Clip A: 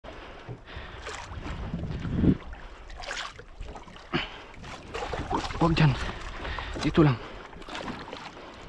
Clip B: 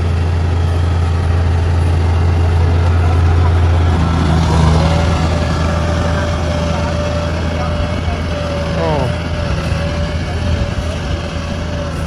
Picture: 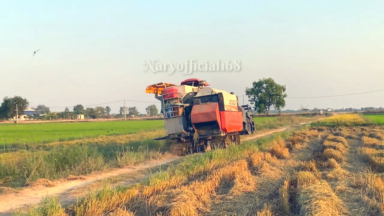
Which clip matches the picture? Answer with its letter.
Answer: B